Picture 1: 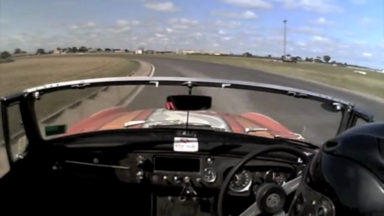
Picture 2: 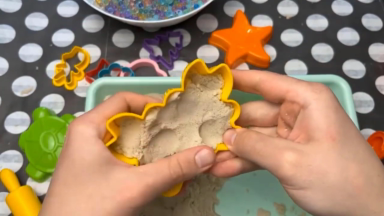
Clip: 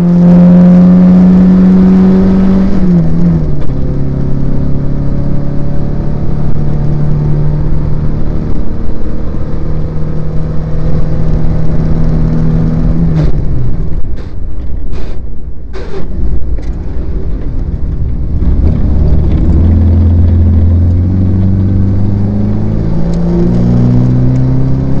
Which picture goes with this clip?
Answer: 1